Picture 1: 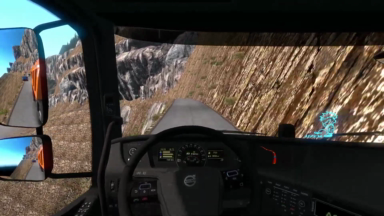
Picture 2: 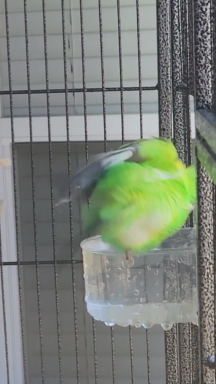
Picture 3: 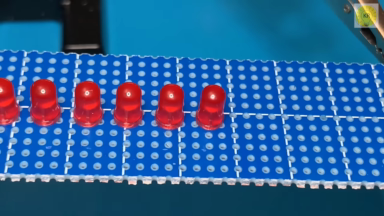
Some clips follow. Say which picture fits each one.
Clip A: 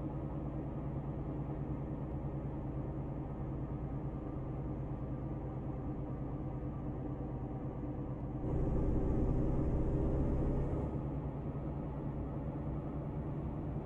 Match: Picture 1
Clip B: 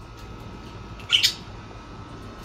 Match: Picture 2